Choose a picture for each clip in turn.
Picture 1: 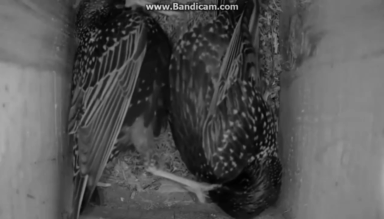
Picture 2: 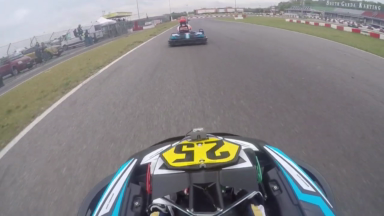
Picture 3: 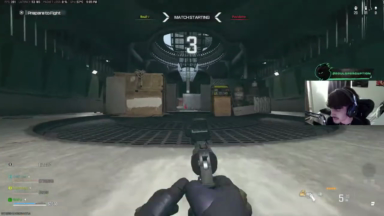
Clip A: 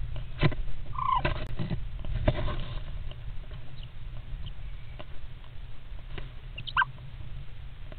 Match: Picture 1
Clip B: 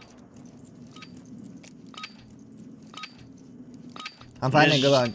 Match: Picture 3